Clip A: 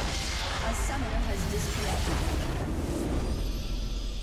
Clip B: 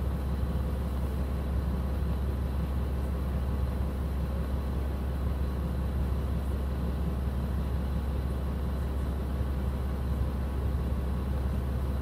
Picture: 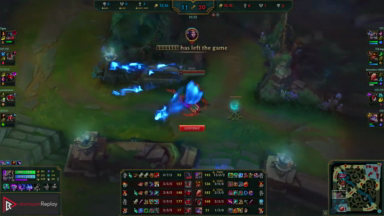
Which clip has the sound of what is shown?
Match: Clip A